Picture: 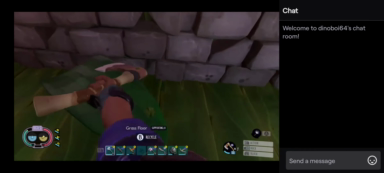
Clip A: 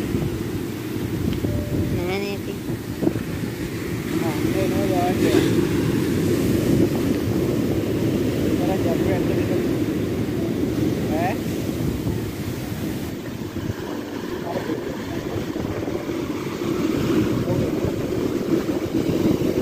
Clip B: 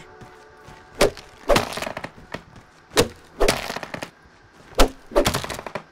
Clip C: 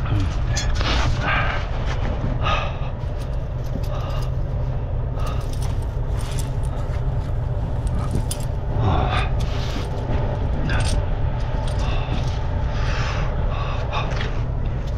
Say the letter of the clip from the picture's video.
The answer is B